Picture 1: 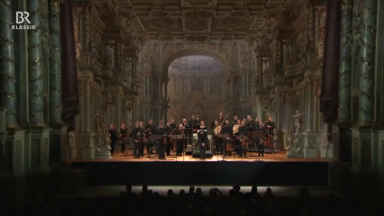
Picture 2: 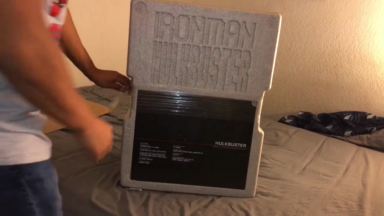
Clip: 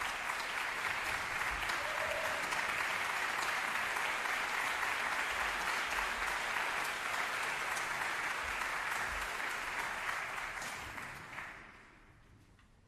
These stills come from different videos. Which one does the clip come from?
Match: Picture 1